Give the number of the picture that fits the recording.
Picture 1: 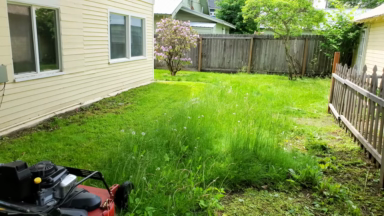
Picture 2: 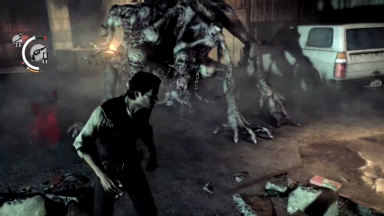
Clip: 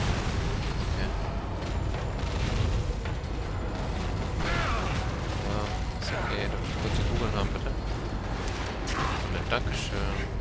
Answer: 2